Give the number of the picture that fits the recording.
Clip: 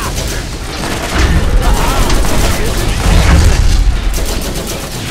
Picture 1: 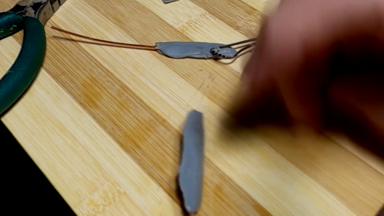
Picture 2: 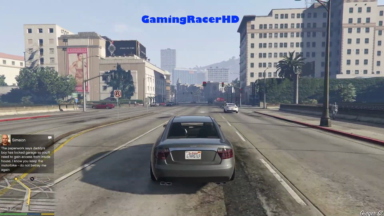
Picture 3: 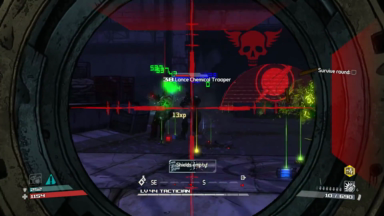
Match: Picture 3